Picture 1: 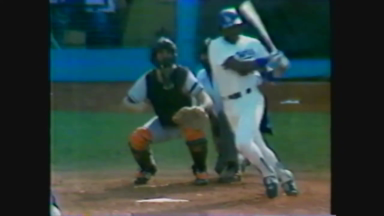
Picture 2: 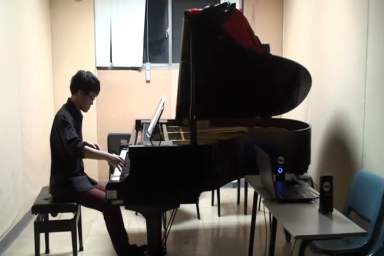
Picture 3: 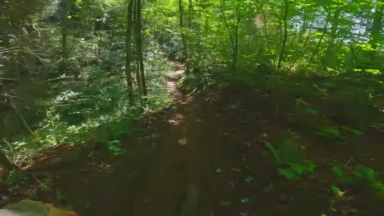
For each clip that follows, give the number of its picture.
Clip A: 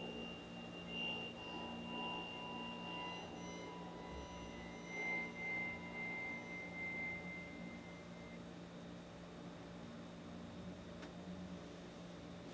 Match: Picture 2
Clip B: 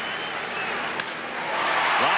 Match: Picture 1